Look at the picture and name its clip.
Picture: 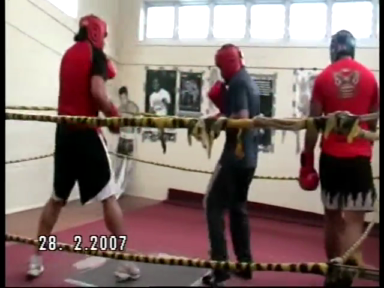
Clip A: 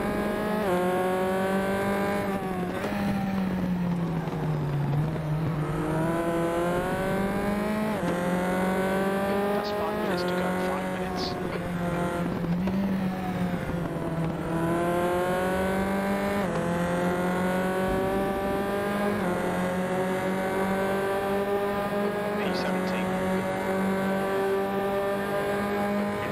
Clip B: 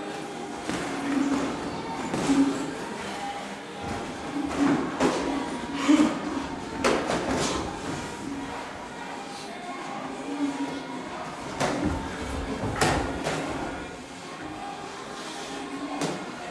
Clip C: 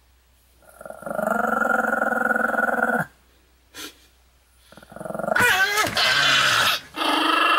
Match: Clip B